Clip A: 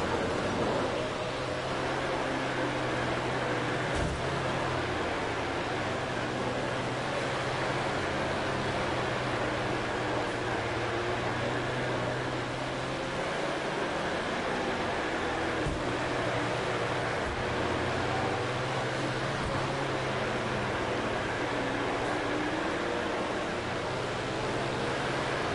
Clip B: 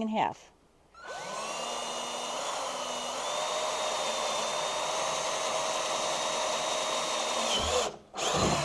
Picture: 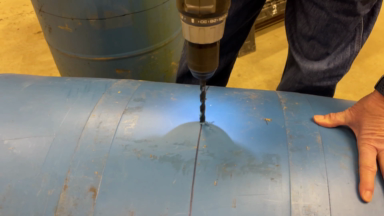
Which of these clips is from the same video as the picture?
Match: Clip B